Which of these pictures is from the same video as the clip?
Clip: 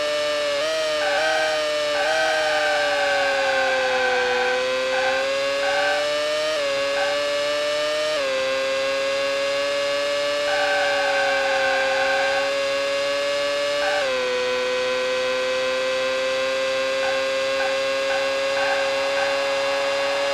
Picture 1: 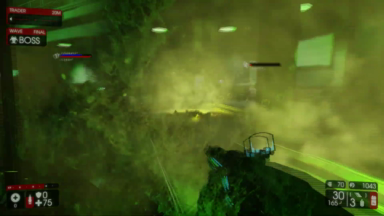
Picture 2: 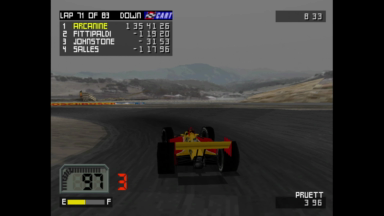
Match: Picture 2